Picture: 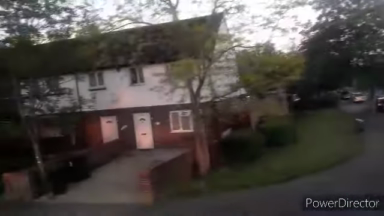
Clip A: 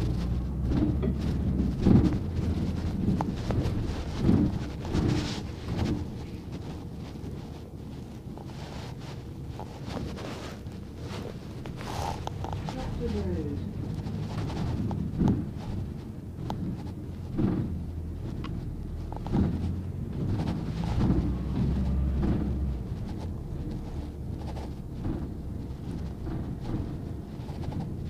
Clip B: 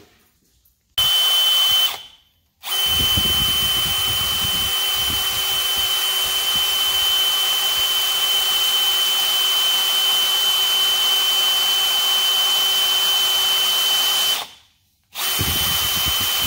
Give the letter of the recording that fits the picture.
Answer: A